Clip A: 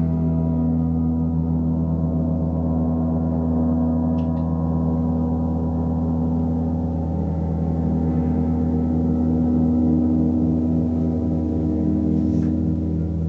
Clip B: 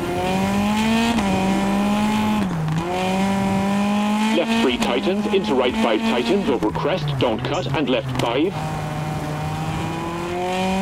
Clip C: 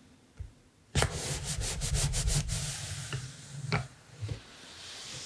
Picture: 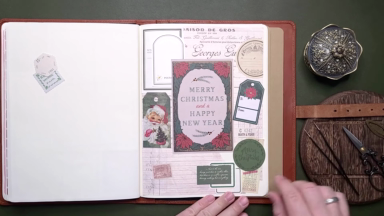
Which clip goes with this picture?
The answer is C